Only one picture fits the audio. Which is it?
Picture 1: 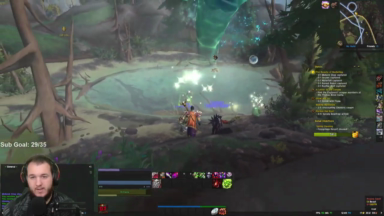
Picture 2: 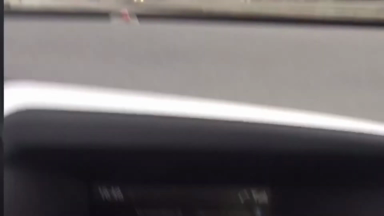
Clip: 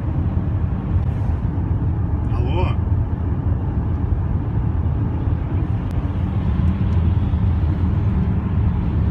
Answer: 2